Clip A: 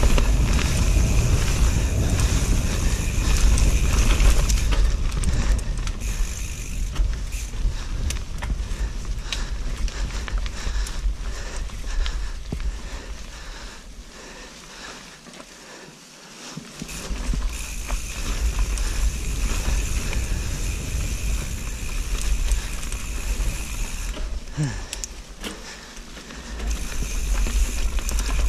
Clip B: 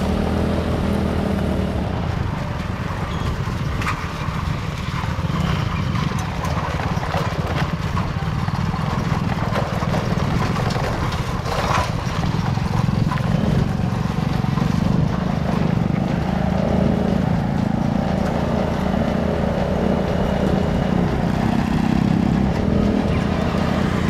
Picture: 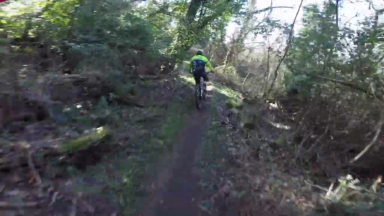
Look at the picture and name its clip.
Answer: A